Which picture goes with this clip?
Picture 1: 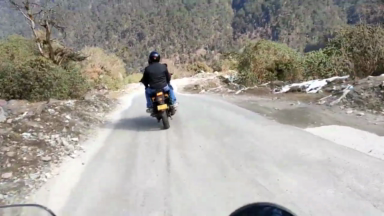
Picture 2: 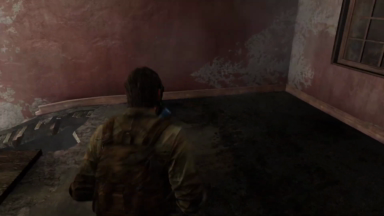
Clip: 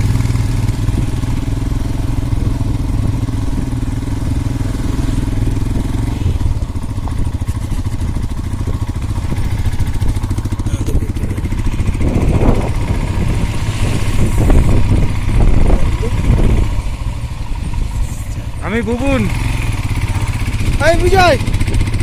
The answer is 1